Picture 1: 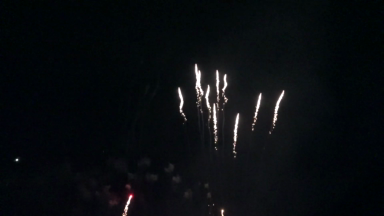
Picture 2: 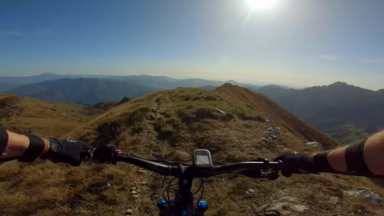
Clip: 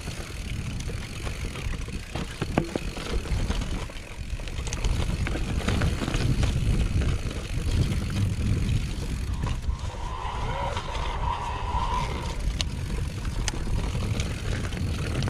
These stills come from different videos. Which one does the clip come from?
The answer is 2